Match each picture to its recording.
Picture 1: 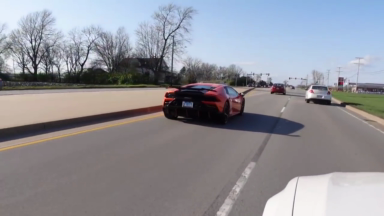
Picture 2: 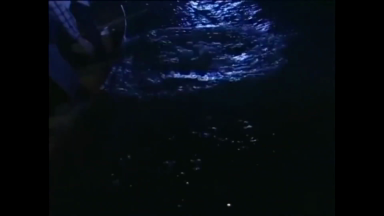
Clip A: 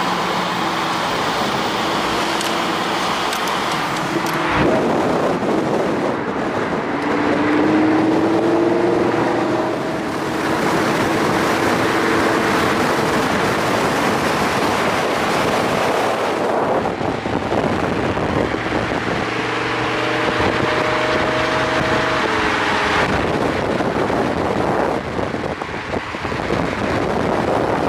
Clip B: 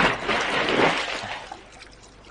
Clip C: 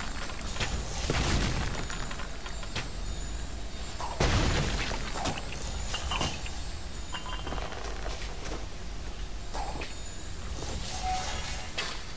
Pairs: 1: A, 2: B